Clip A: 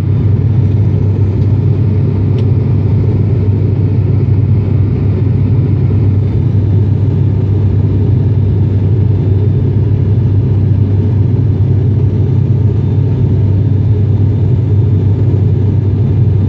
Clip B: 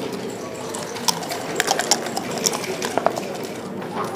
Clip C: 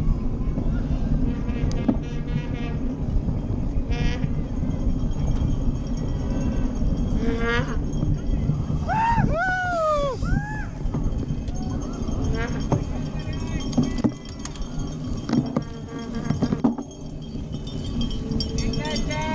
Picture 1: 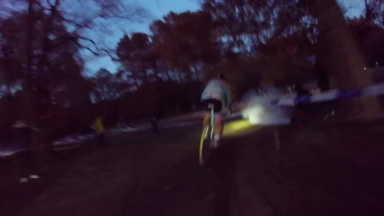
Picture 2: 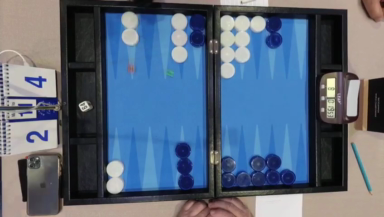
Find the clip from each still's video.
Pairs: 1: C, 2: B